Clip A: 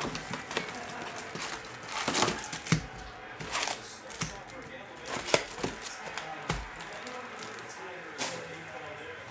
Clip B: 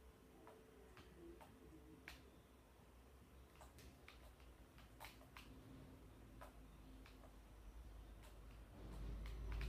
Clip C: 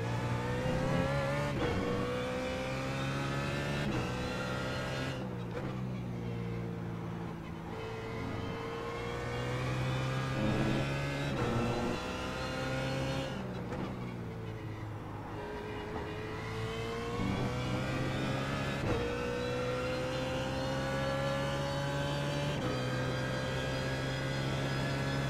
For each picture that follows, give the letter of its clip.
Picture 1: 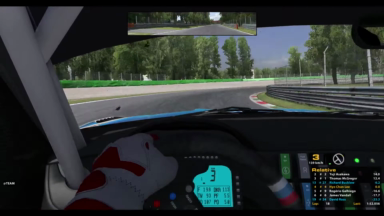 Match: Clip C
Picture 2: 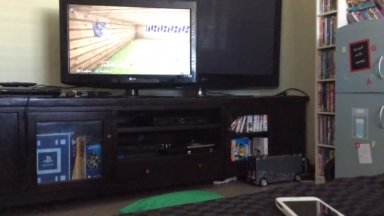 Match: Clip B